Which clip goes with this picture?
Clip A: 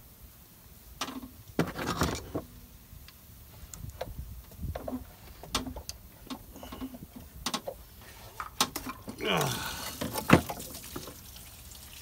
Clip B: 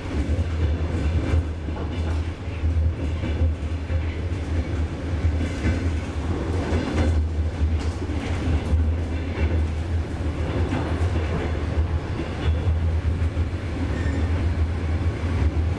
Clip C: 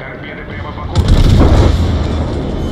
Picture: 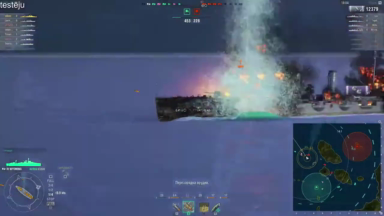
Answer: C